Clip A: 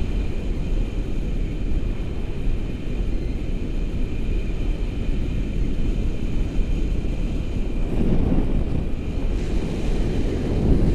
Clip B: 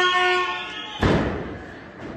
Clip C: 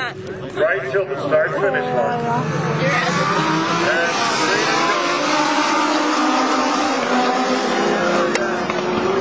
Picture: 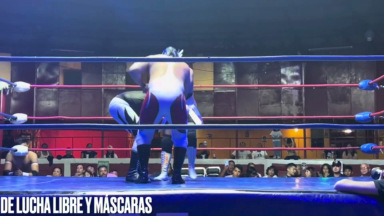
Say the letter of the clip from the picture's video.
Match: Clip B